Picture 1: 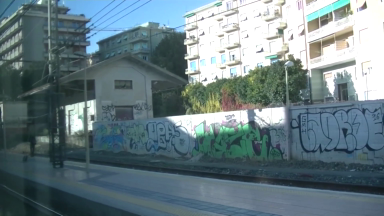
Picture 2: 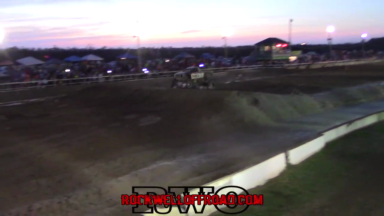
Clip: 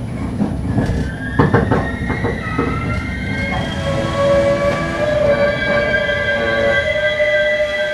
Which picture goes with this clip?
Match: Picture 1